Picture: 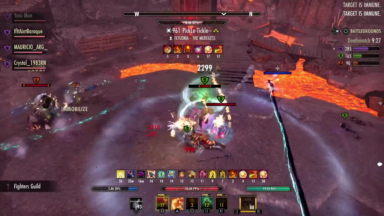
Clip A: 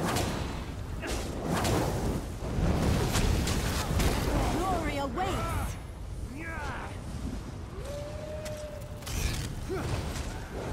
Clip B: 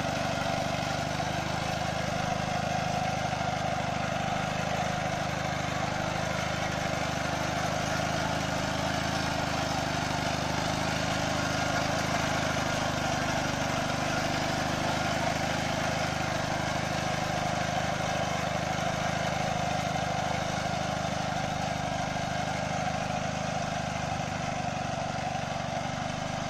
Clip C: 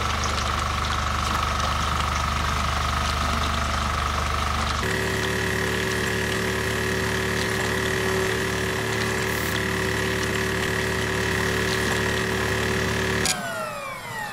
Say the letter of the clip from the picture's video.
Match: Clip A